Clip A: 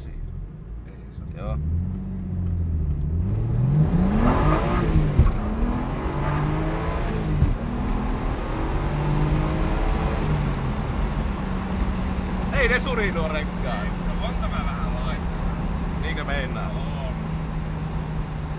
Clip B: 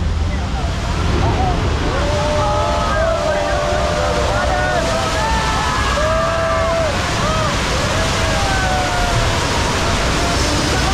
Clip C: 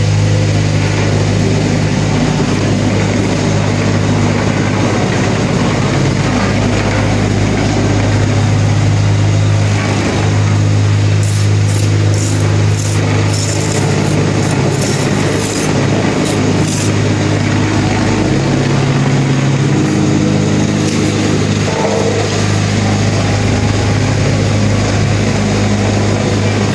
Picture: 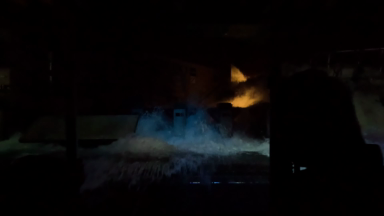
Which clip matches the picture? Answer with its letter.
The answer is B